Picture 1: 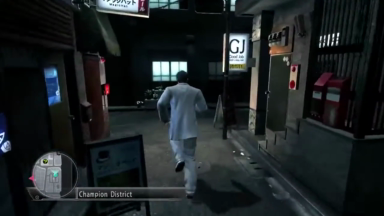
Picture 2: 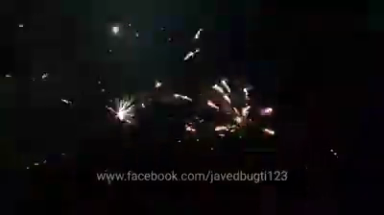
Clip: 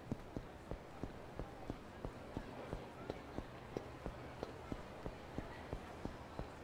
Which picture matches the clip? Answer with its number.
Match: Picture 1